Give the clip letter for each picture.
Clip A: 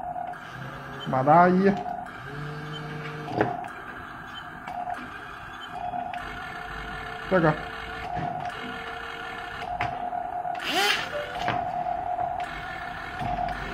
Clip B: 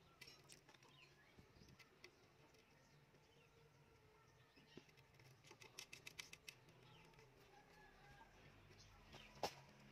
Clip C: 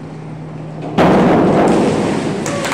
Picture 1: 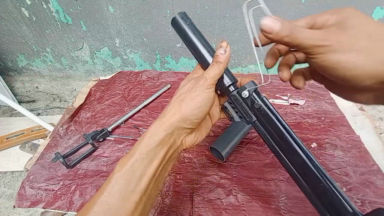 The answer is B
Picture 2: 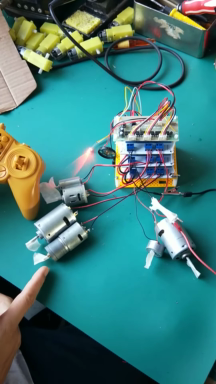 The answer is A